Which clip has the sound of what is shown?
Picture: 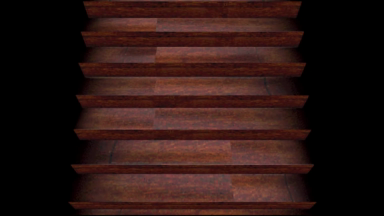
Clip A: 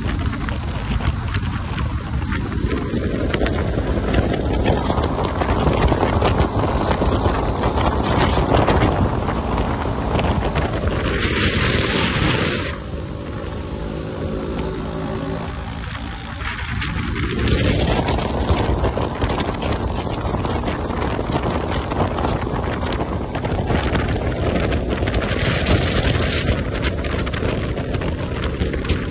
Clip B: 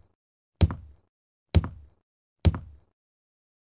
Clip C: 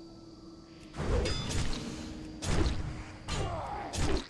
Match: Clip B